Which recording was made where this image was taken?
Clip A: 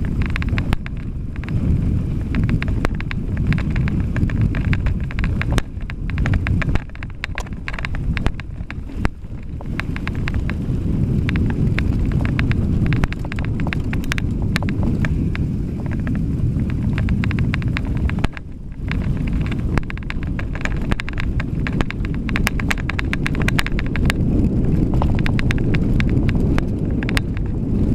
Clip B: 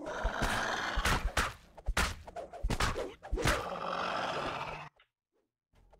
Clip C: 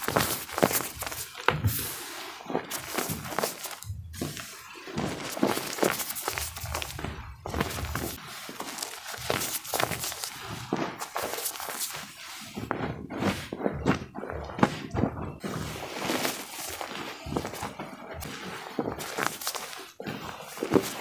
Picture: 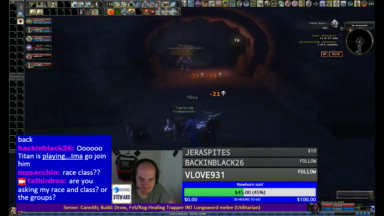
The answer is B